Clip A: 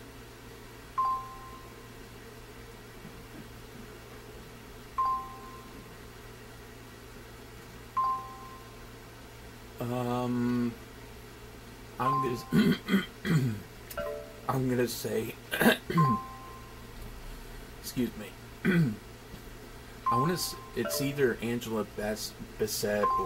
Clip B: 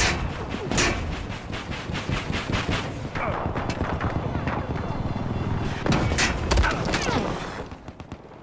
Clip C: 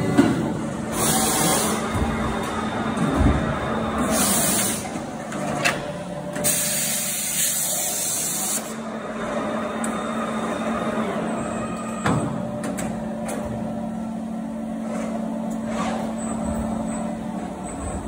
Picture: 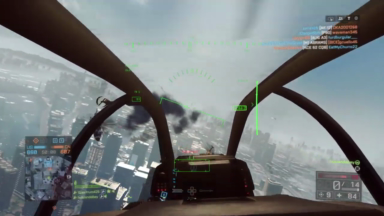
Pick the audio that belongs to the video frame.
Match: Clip B